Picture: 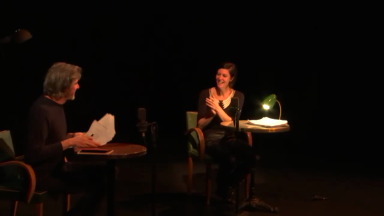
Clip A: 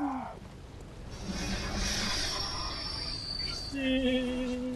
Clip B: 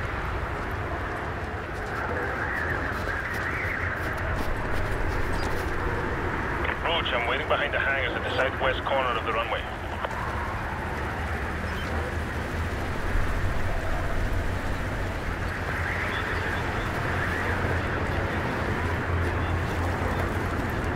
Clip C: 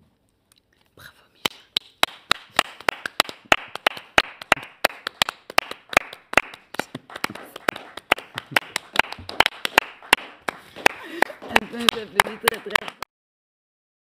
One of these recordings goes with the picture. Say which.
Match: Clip C